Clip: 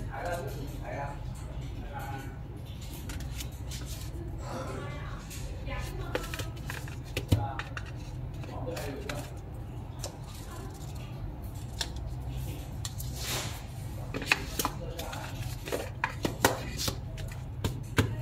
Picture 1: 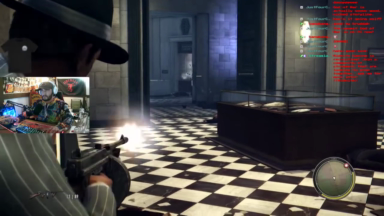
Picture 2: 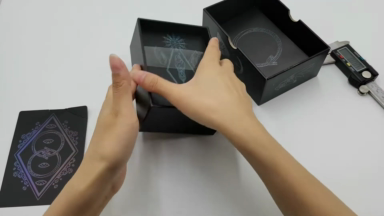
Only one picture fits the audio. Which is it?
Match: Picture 2